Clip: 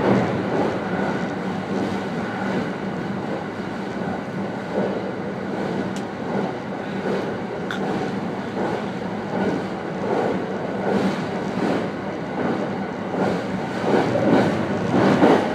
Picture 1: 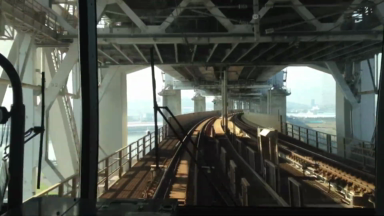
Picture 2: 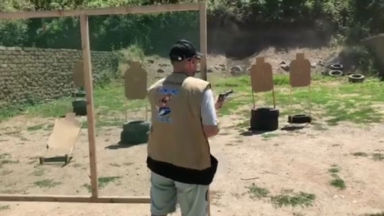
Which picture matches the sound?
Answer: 1